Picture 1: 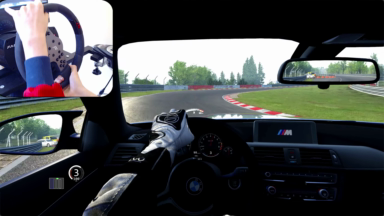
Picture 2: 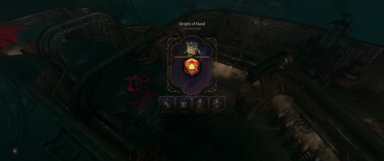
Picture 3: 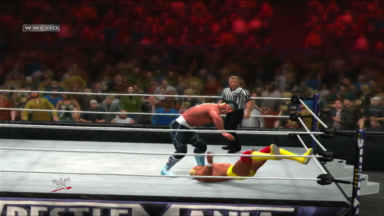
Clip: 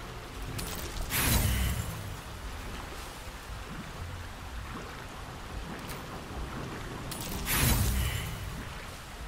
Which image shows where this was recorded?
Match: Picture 2